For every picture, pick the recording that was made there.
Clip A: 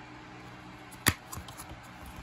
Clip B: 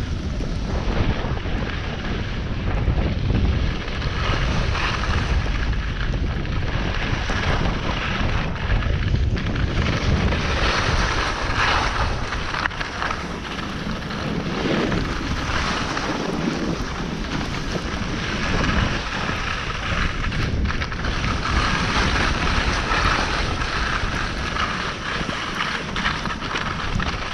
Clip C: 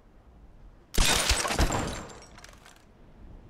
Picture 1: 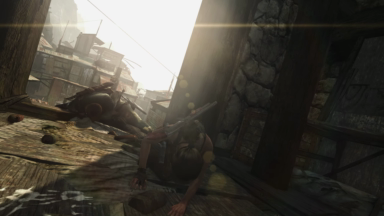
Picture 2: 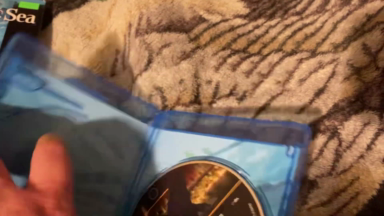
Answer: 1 C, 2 A